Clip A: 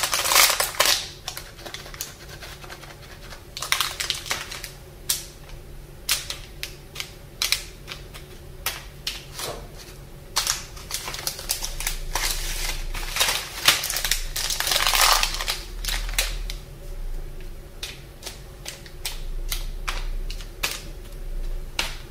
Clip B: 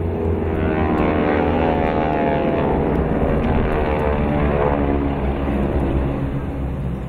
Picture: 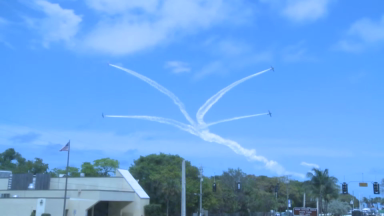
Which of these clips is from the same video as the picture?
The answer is B